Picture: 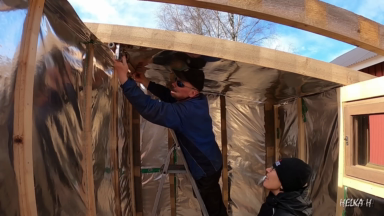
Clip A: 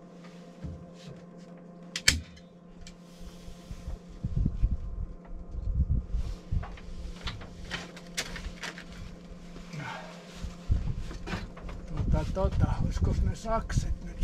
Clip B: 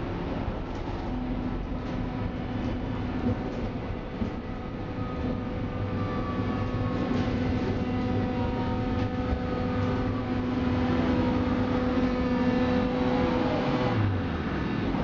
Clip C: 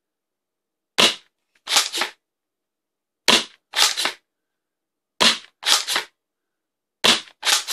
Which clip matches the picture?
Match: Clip A